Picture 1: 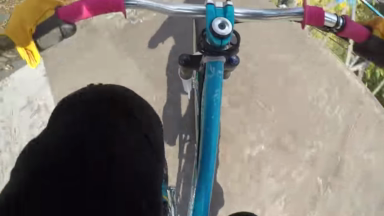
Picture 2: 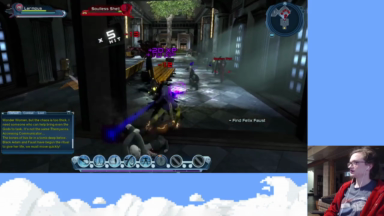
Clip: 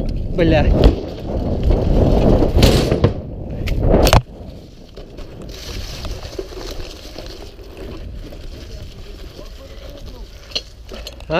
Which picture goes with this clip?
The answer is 1